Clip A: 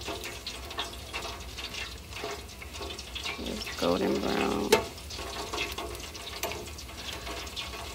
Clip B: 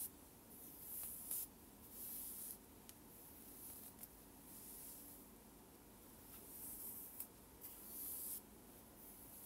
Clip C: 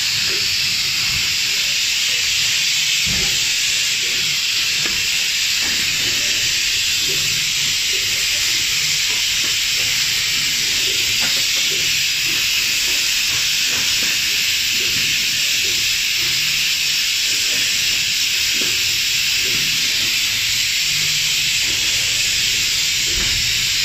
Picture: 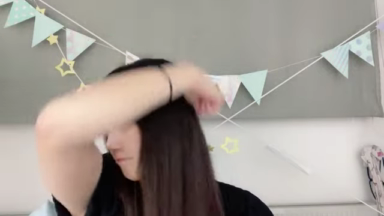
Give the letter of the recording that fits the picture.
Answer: B